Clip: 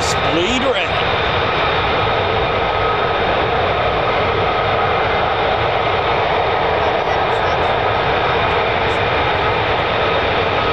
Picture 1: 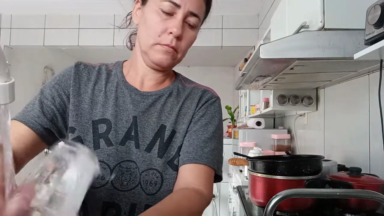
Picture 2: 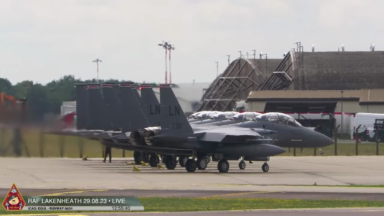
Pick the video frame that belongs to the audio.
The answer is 2